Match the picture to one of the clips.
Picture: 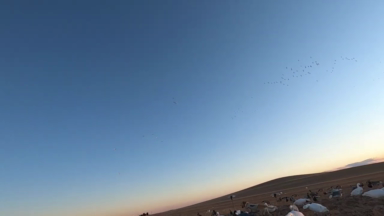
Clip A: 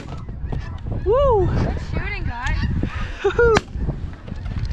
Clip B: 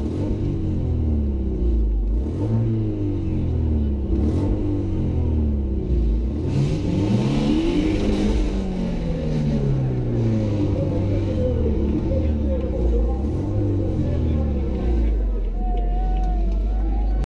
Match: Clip A